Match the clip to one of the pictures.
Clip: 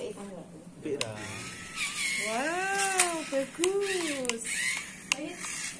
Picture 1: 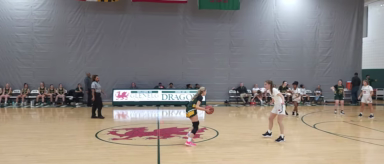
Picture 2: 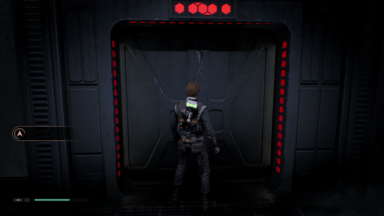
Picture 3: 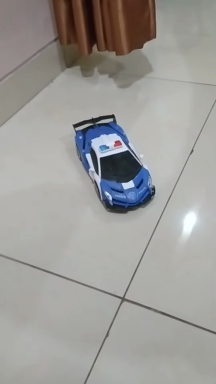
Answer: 3